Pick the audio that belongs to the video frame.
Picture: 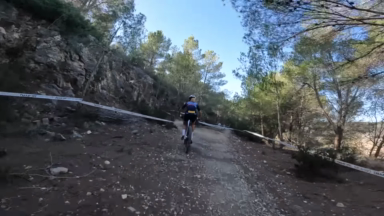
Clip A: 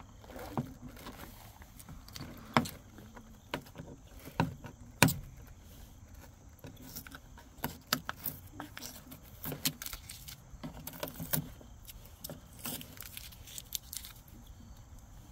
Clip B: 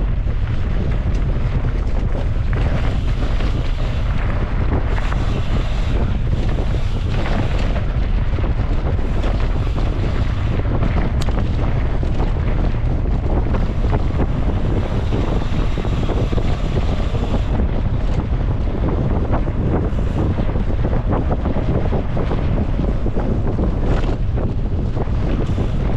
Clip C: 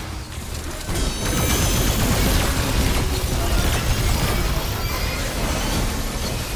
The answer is B